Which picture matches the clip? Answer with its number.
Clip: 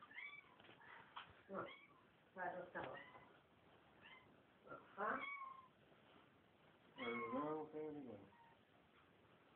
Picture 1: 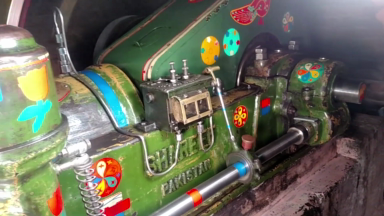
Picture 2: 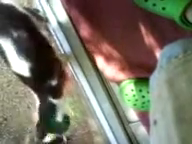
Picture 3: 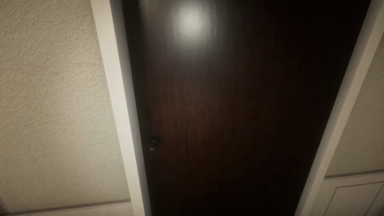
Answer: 2